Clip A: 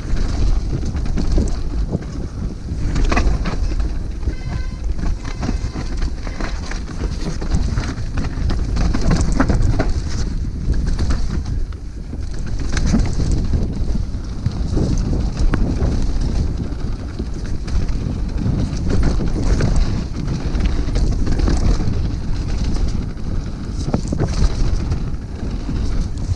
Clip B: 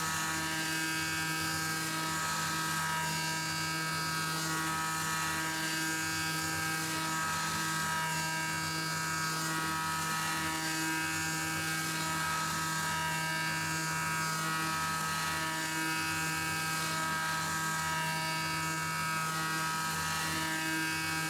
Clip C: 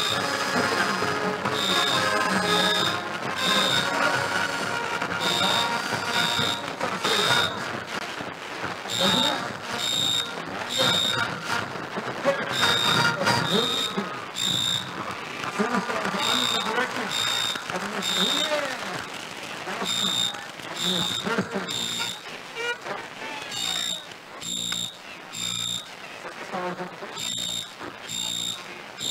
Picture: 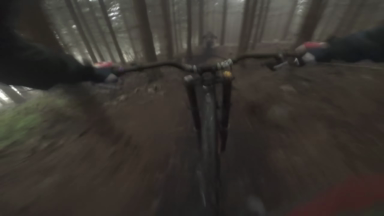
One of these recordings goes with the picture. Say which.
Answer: A